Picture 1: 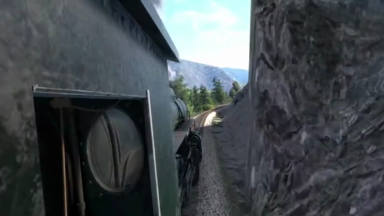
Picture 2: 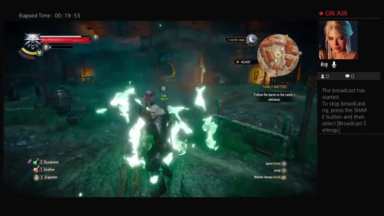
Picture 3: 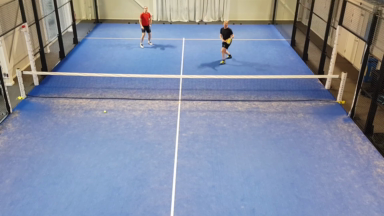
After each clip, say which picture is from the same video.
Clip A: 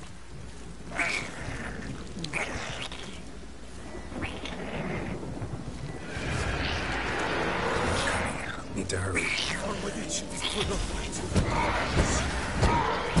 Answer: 2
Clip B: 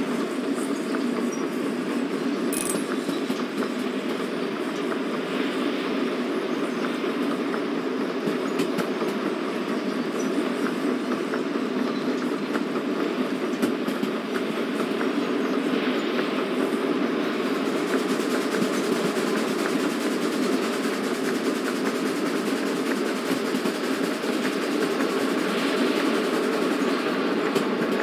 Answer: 1